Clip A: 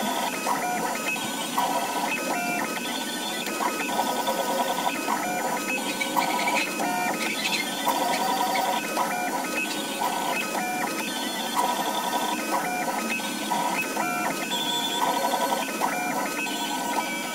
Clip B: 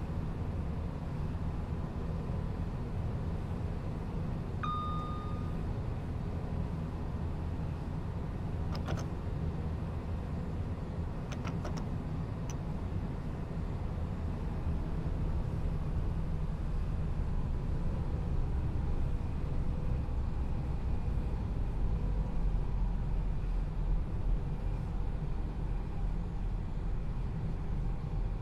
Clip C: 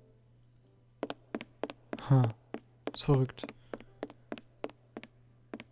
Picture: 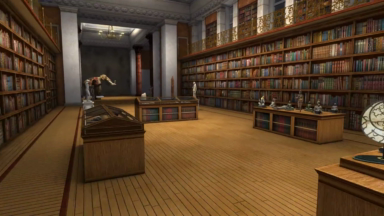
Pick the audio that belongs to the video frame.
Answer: C